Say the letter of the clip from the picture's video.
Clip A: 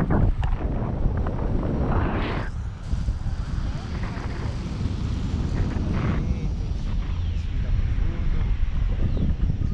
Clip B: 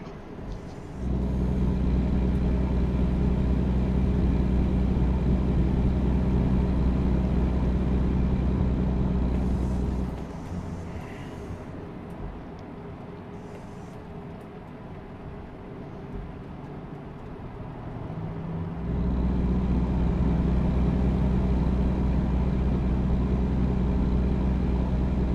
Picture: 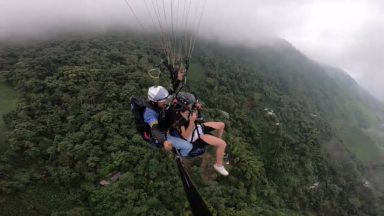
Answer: A